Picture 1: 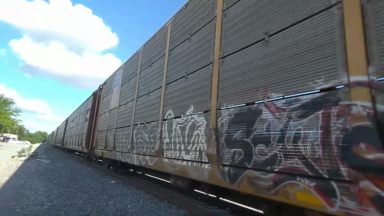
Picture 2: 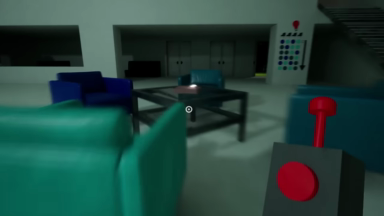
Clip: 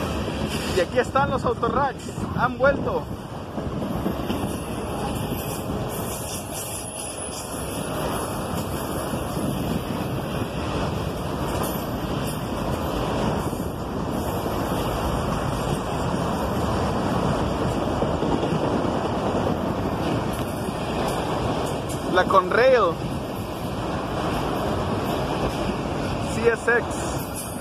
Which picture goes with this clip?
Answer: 1